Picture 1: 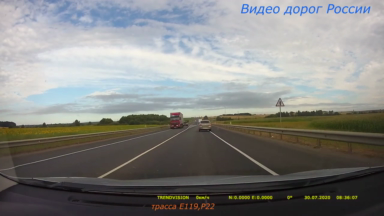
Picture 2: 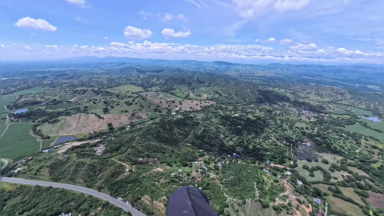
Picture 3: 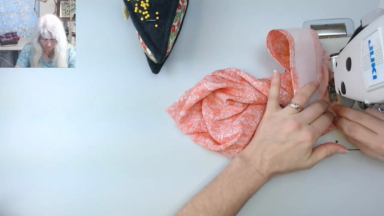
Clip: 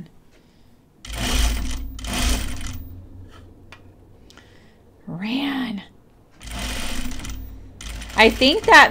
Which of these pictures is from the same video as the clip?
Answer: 3